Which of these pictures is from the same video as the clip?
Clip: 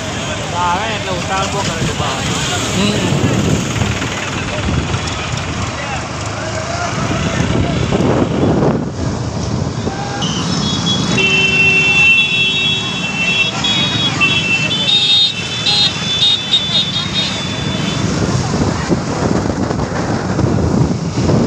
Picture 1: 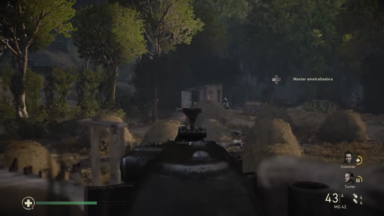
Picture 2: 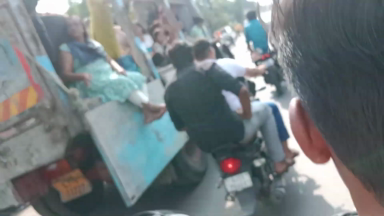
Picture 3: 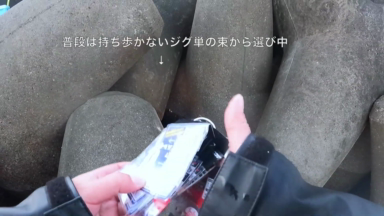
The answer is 2